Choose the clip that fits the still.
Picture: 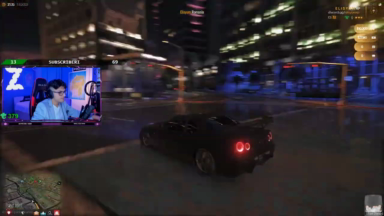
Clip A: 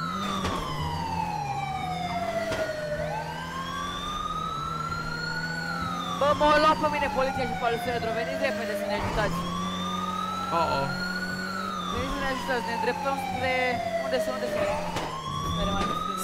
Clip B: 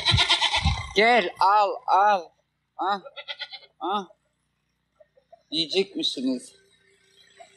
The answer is A